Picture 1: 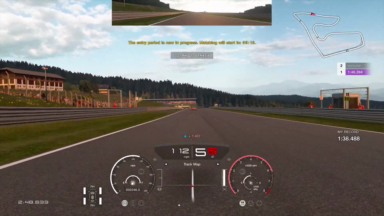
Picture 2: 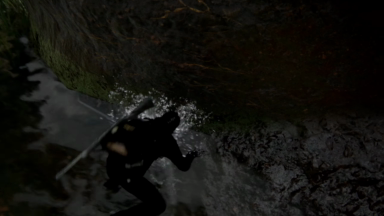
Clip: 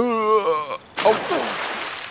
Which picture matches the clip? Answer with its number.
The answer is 2